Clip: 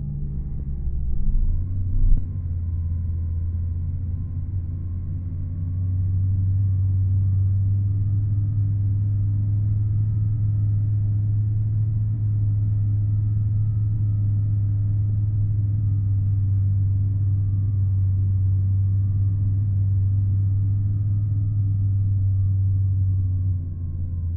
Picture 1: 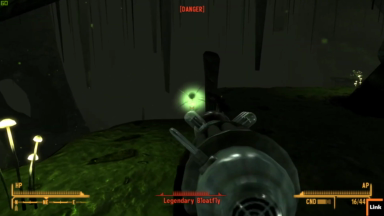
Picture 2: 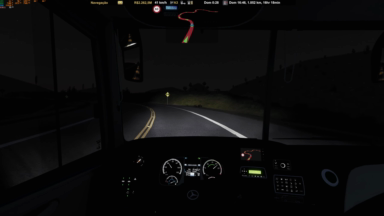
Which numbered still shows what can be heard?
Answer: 2